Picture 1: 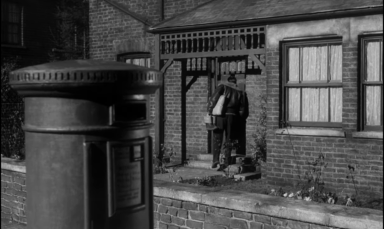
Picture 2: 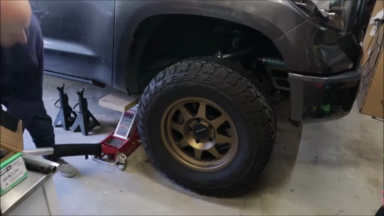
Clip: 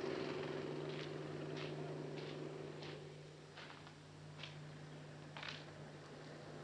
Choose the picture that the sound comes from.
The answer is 1